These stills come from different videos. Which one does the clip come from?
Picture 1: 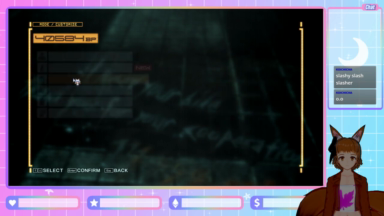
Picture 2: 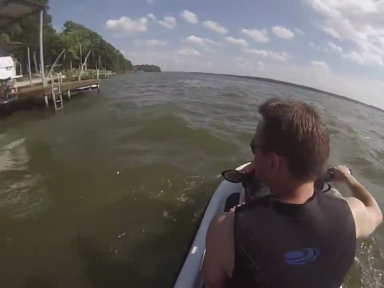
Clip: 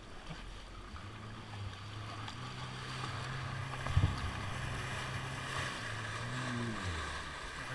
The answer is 2